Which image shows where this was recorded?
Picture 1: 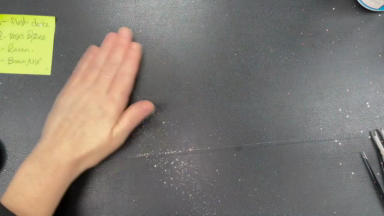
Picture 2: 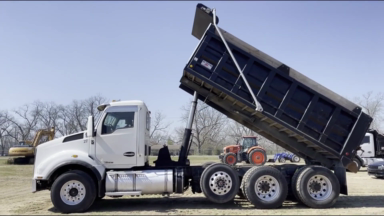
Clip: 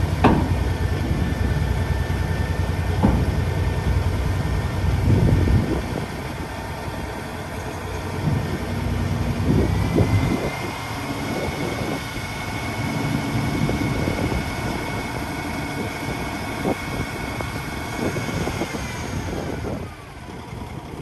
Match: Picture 2